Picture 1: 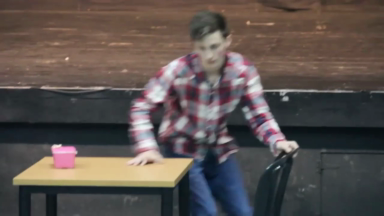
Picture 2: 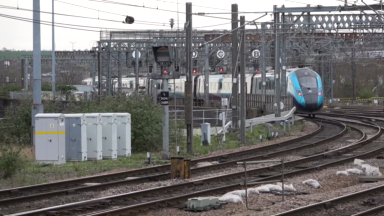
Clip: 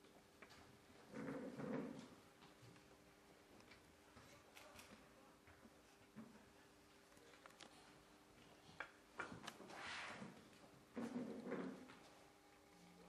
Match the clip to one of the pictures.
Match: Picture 1